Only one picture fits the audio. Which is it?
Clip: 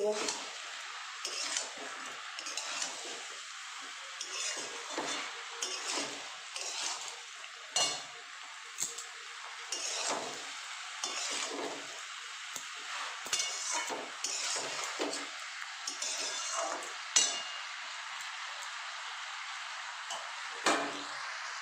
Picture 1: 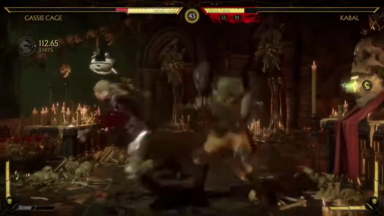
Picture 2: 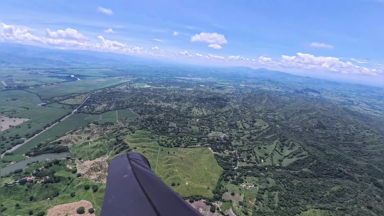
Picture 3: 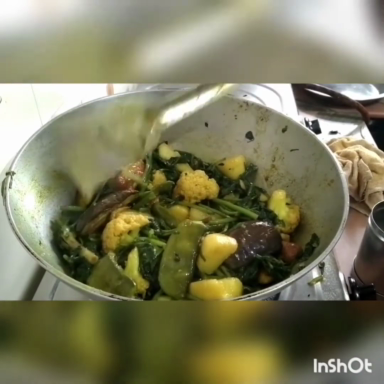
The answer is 3